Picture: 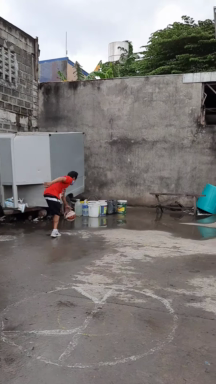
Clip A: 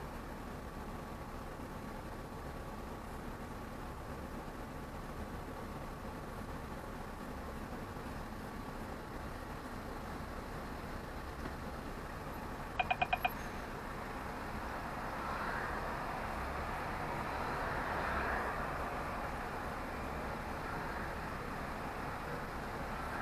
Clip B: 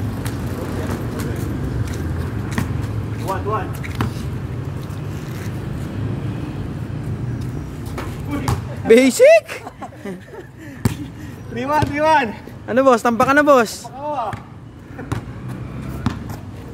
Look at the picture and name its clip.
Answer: B